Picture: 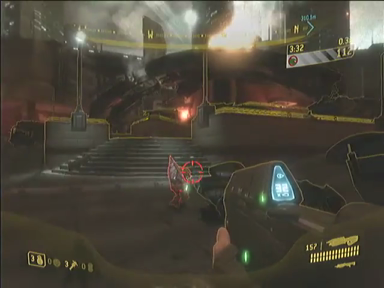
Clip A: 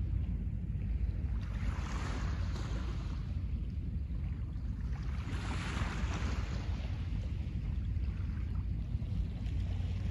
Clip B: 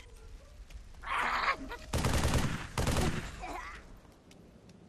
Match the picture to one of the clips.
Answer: B